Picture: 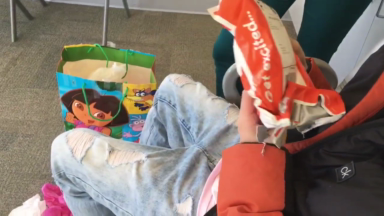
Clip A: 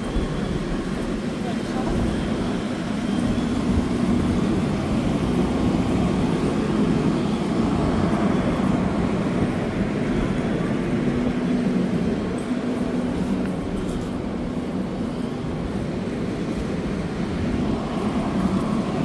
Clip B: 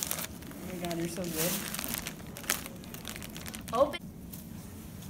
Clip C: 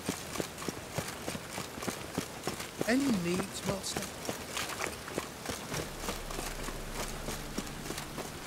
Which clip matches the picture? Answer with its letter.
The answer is B